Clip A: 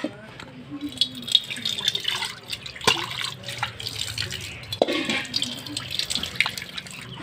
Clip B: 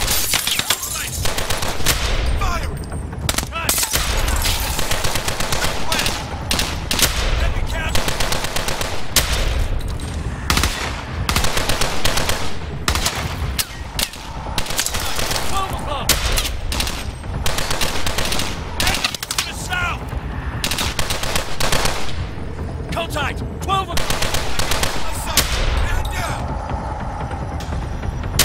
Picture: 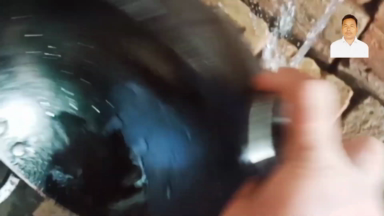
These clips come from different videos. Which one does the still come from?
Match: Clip A